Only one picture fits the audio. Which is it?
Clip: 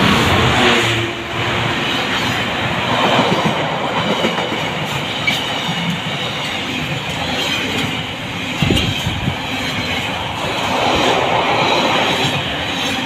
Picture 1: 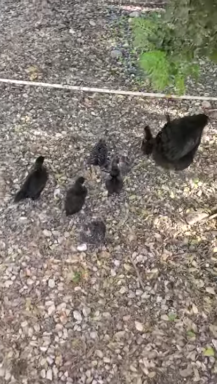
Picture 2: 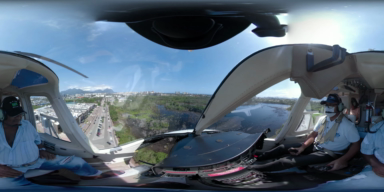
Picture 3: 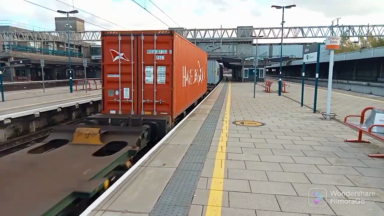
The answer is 3